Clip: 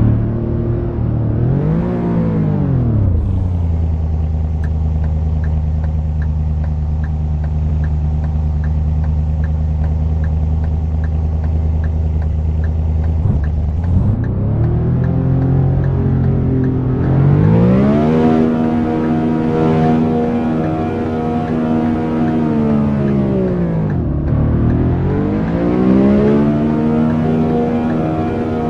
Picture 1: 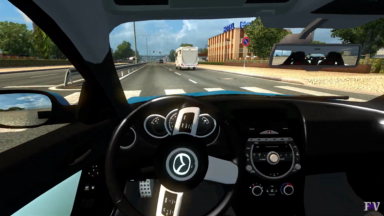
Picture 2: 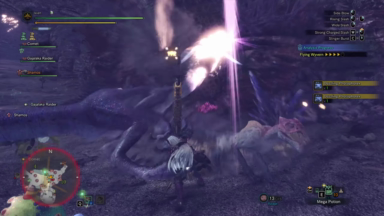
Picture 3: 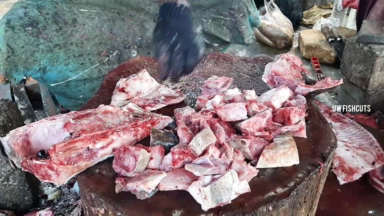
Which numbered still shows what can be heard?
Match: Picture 1